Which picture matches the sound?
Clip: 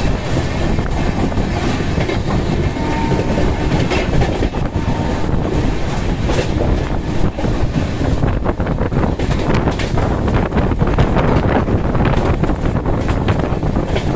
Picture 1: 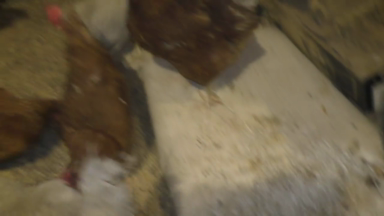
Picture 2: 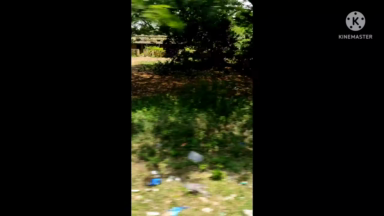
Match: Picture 2